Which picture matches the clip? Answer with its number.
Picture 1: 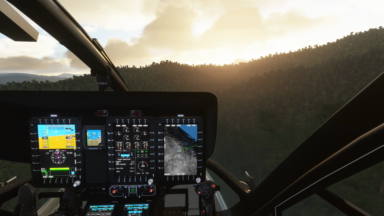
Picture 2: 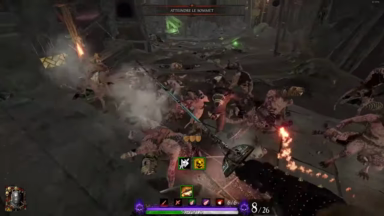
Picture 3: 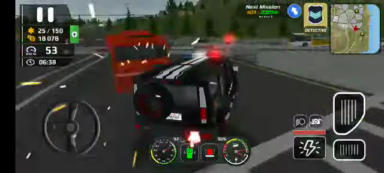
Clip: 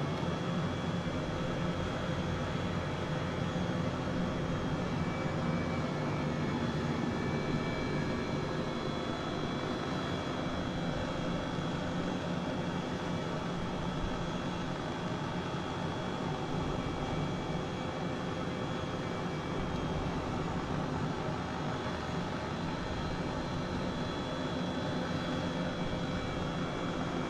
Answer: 1